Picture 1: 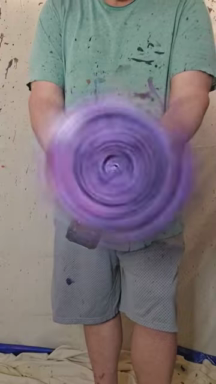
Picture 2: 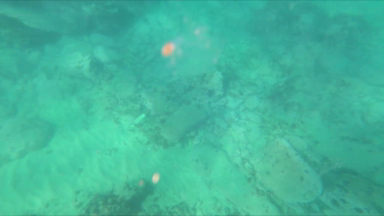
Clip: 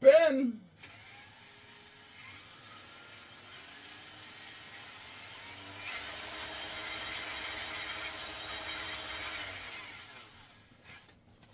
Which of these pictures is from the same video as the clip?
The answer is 1